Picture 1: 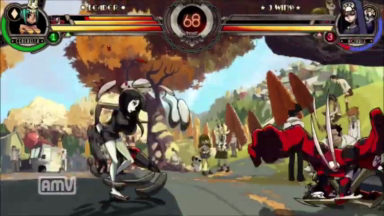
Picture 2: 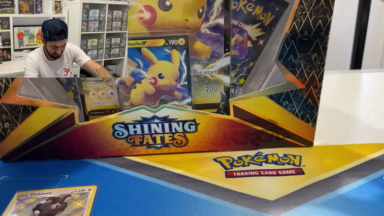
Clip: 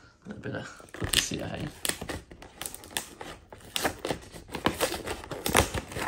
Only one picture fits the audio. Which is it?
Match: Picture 2